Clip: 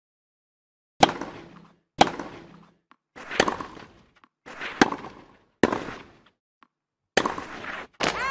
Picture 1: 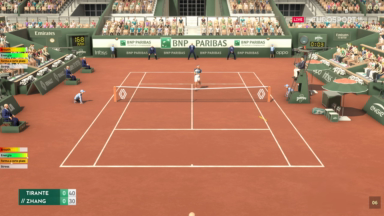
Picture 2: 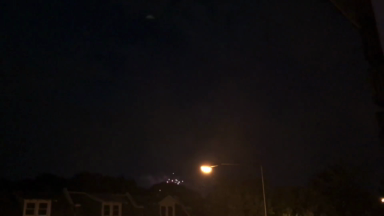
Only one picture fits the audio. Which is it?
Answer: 1